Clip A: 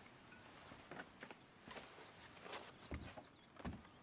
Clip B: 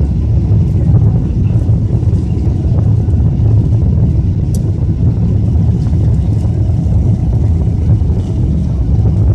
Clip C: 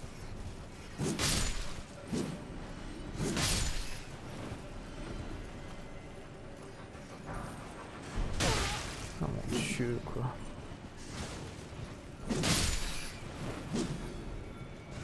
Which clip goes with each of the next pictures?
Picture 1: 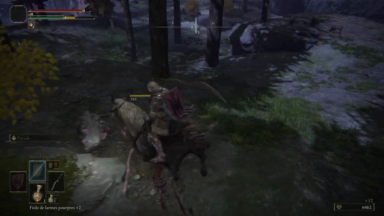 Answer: C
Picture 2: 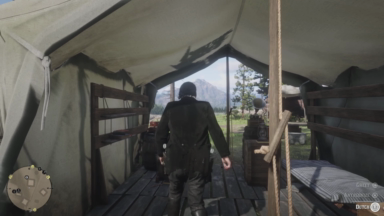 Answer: A